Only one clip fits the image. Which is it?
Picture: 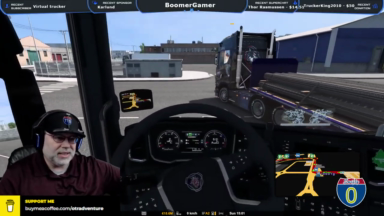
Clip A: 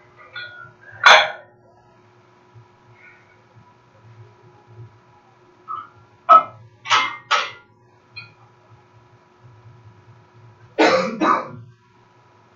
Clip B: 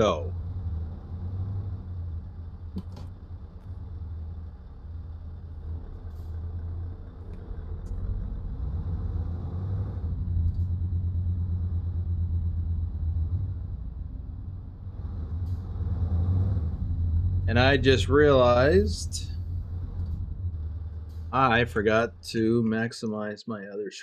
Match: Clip B